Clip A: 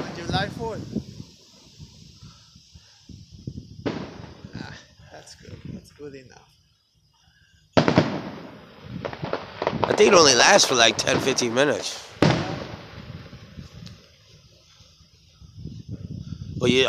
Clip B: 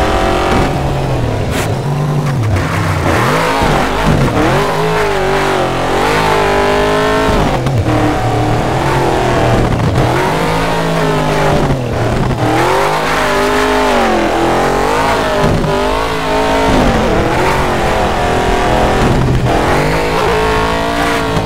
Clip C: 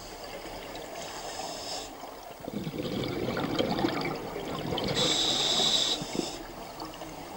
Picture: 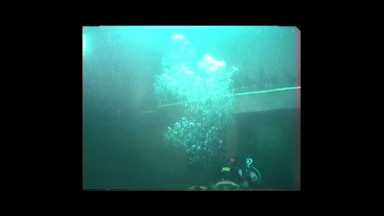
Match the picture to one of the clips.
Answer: C